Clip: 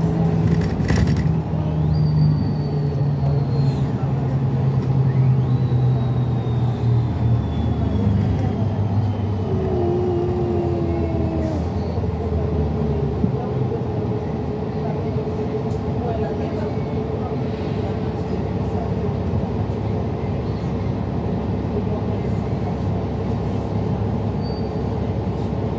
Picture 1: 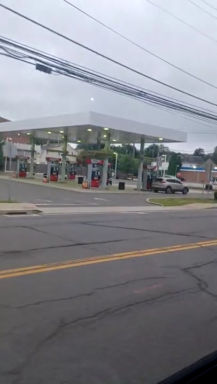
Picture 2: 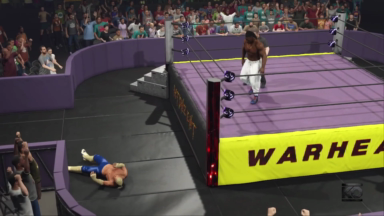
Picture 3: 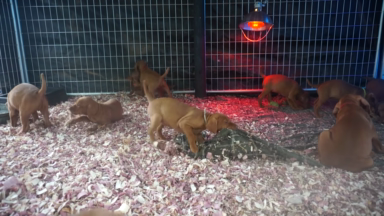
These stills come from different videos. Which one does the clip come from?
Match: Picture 1